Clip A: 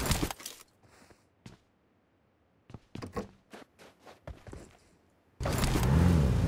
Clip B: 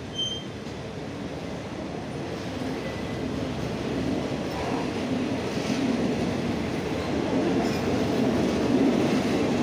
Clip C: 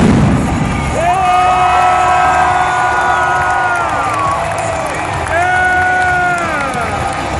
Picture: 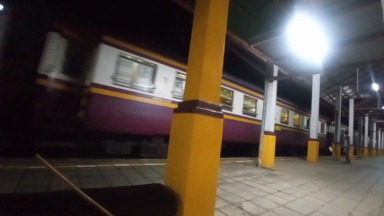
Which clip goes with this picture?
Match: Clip B